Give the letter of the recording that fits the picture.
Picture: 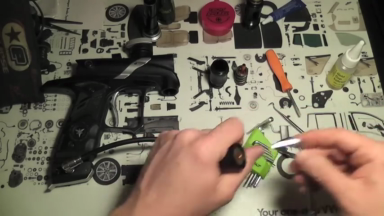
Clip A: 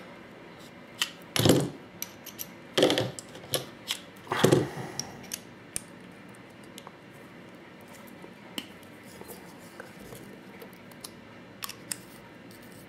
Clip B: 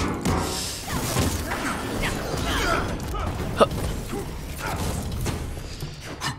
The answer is A